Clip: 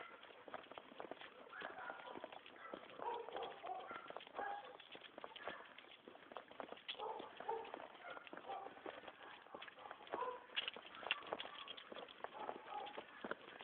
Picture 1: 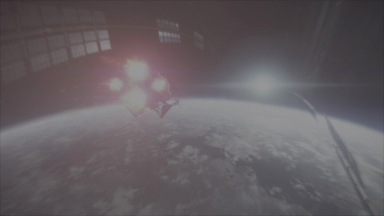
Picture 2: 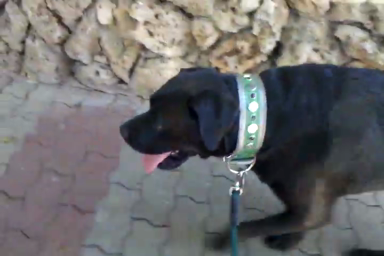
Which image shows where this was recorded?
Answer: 2